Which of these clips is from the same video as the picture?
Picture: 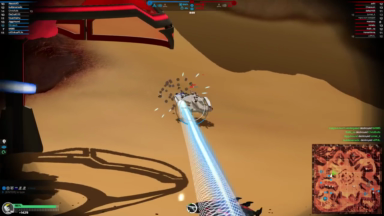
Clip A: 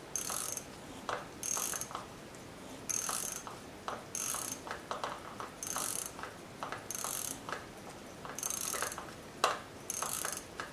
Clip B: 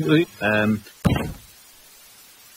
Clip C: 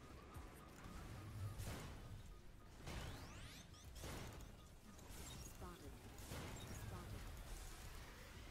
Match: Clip C